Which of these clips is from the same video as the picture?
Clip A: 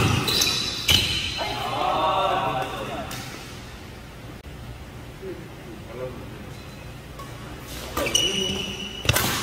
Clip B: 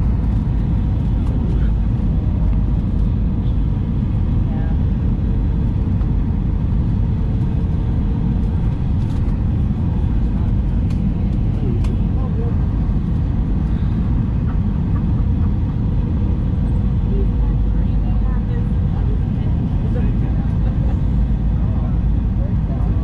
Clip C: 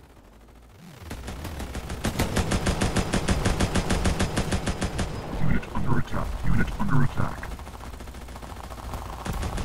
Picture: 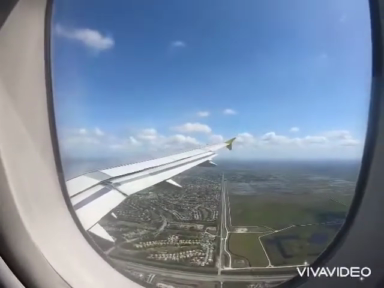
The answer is B